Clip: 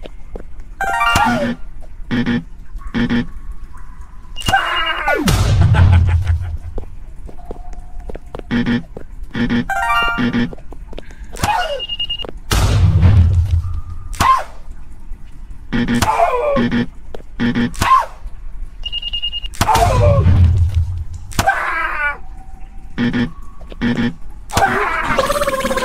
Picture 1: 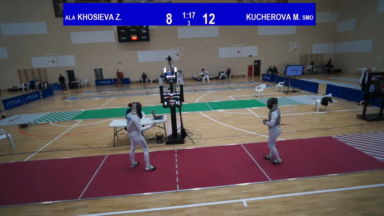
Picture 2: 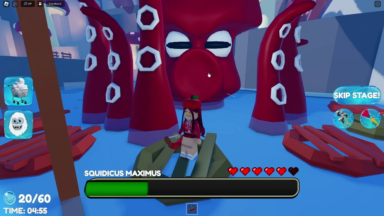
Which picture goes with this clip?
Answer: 2